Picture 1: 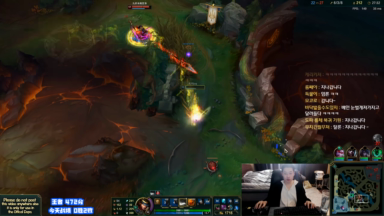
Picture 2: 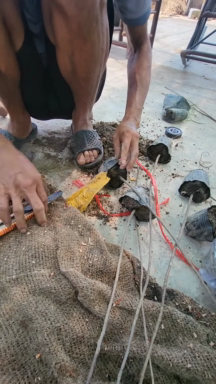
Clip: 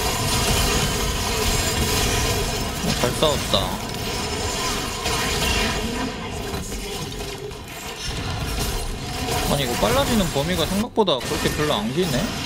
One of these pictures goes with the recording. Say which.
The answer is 1